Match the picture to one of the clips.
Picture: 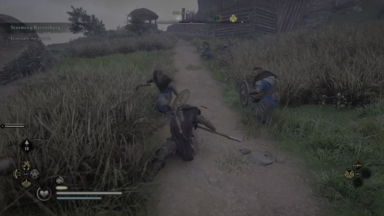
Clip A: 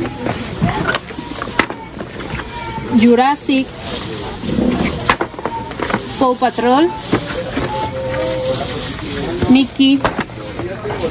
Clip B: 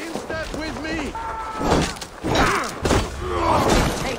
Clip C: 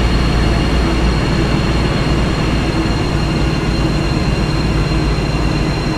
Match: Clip B